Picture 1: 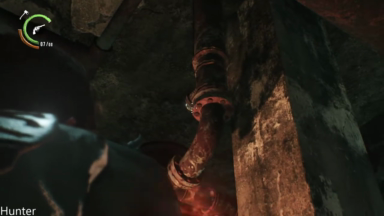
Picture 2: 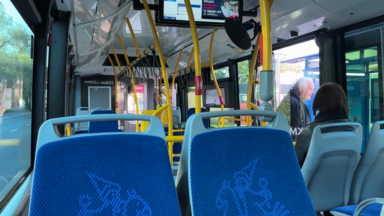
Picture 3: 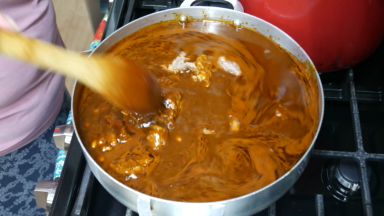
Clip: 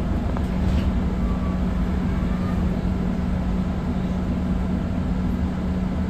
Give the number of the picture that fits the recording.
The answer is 2